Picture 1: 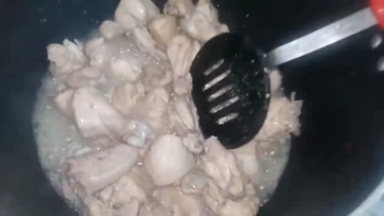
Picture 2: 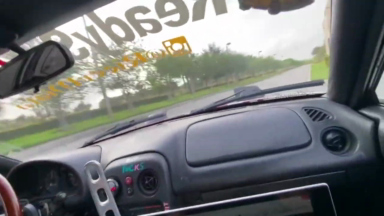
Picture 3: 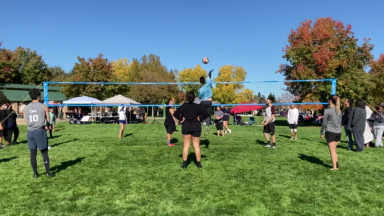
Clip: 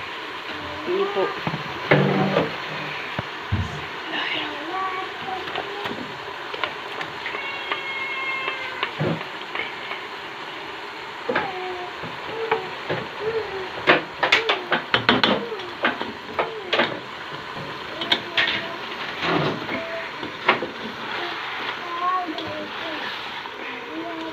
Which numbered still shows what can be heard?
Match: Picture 1